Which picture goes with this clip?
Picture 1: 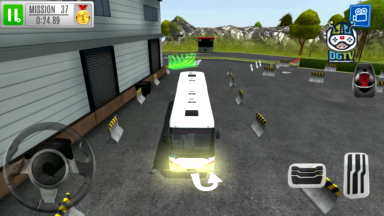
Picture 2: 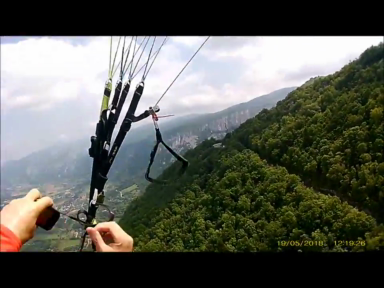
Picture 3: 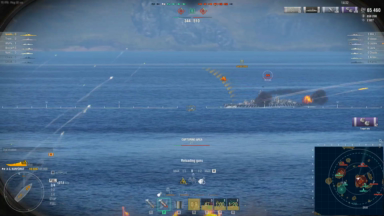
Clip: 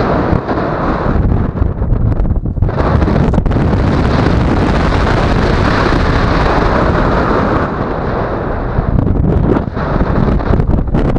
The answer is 2